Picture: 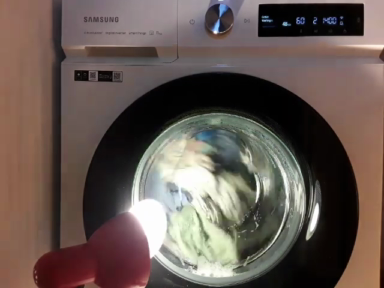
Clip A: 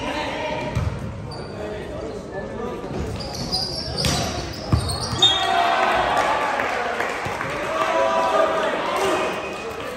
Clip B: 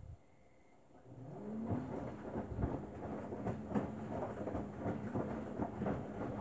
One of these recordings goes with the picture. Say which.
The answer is B